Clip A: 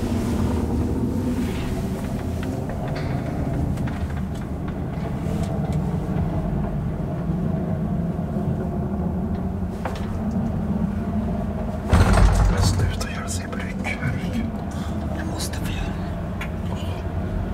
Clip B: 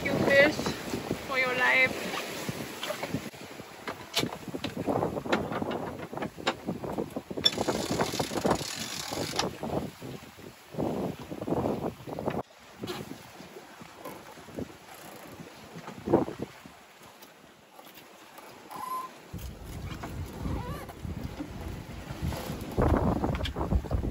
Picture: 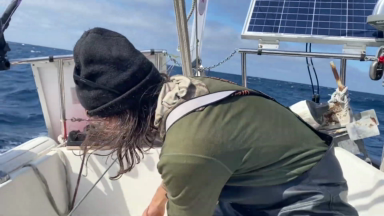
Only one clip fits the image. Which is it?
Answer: B